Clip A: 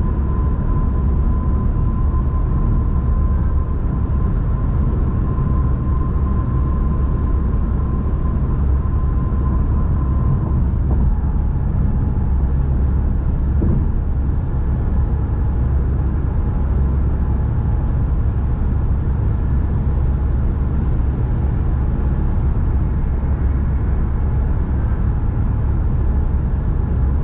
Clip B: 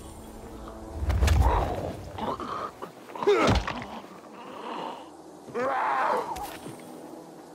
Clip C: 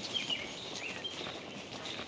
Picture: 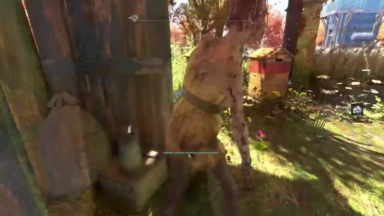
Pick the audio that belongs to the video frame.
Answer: B